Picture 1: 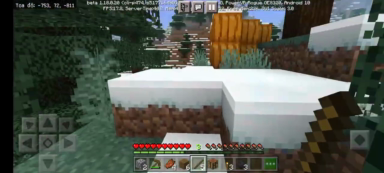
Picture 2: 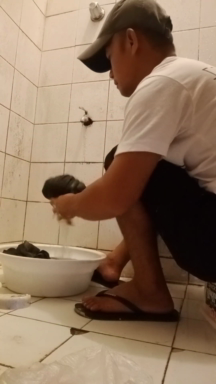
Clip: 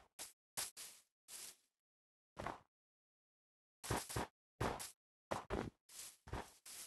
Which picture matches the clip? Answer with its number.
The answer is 1